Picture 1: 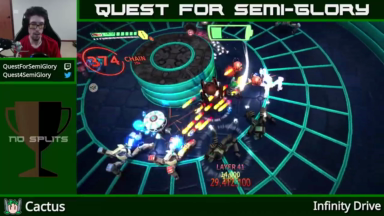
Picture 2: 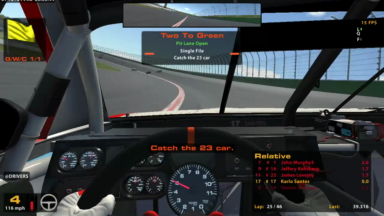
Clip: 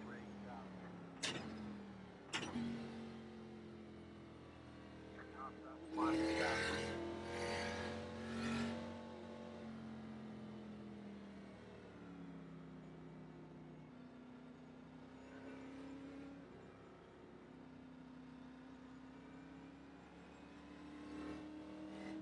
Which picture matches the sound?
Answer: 2